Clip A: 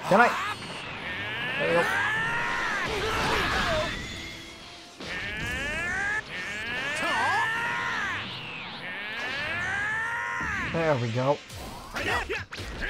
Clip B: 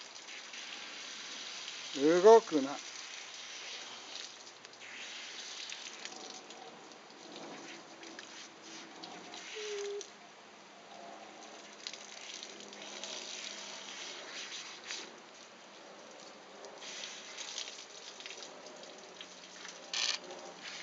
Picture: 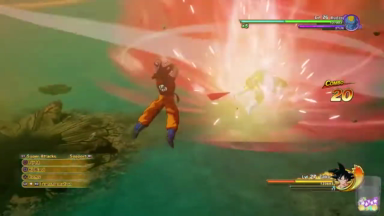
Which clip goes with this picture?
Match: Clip A